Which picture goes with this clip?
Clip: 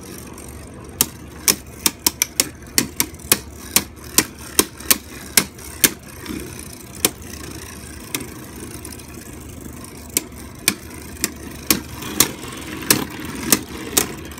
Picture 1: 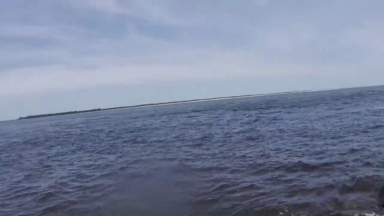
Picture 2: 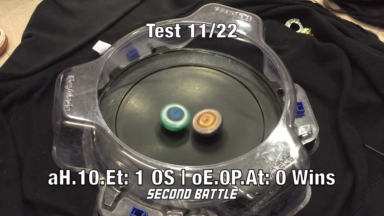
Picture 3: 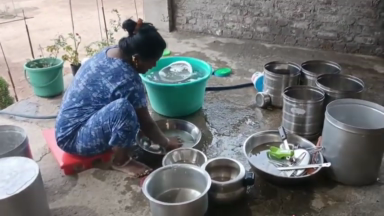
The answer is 2